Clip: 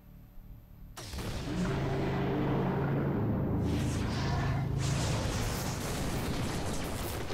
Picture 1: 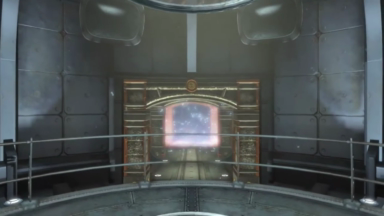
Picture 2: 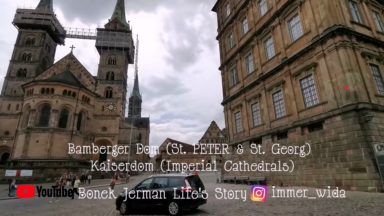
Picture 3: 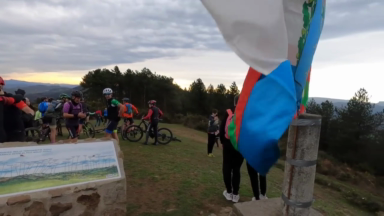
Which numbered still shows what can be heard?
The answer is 1